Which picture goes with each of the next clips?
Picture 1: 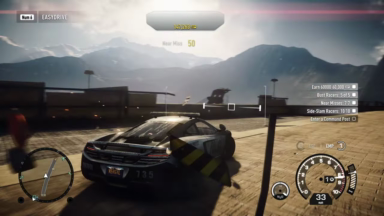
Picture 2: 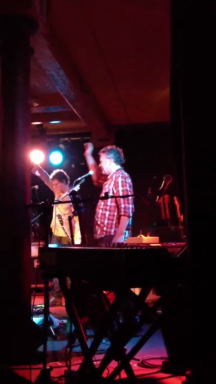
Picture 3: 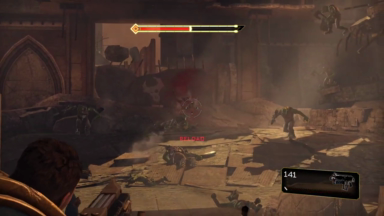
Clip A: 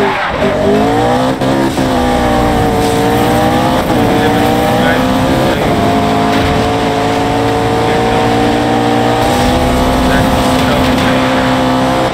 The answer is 1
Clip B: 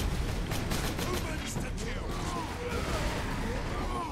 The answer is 3